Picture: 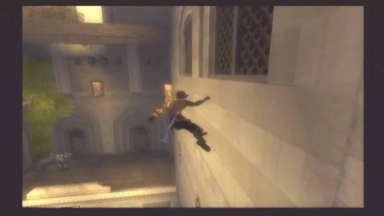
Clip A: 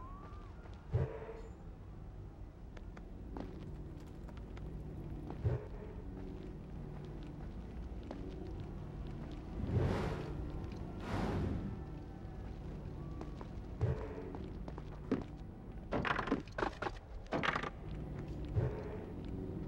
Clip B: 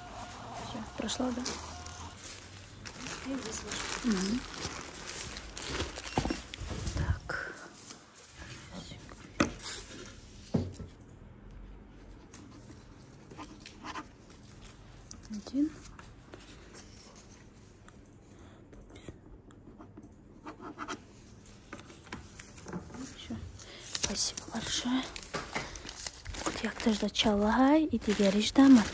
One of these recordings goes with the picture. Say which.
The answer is A